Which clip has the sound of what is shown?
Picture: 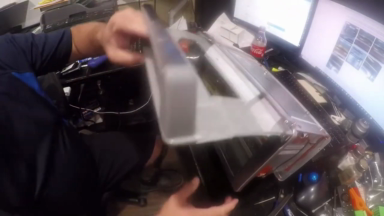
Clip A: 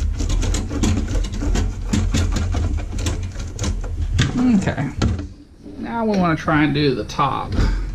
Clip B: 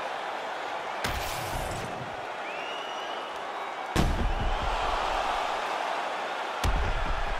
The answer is A